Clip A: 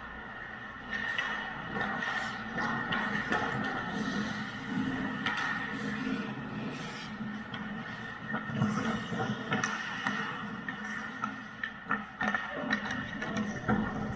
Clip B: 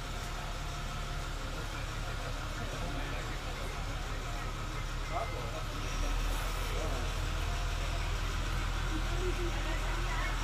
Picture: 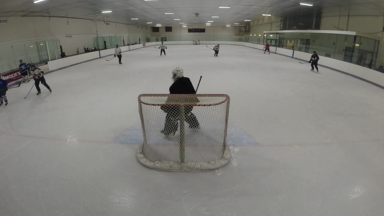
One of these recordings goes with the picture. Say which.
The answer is A